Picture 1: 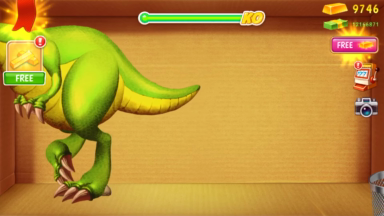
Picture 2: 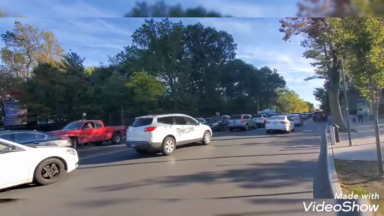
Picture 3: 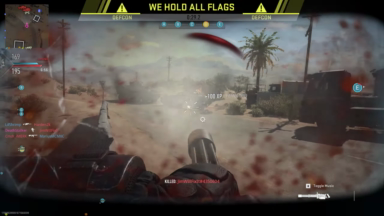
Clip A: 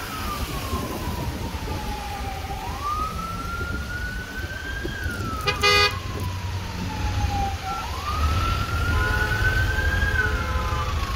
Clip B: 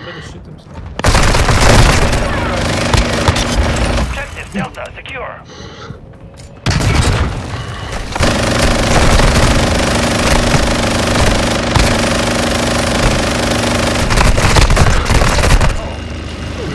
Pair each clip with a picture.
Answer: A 2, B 3